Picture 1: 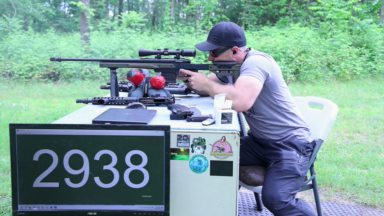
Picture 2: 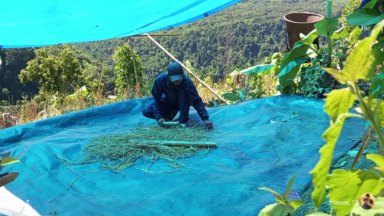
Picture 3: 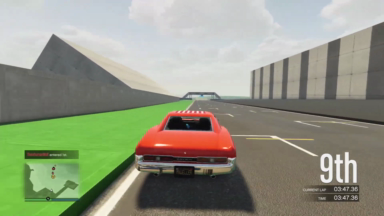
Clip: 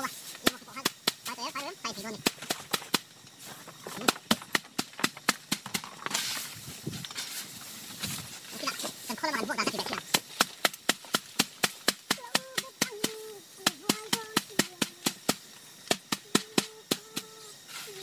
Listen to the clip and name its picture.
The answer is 2